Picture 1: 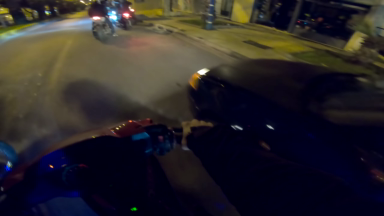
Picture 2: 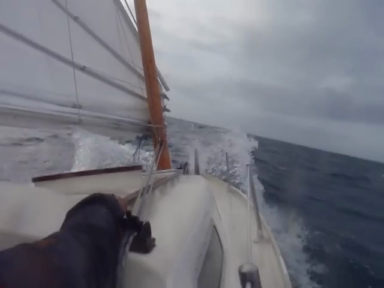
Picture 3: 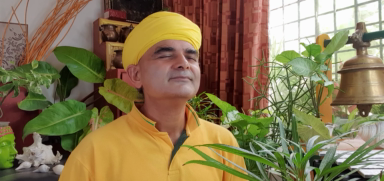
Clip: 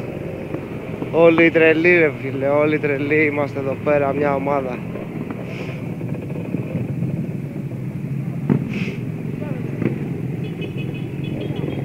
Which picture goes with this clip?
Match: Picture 1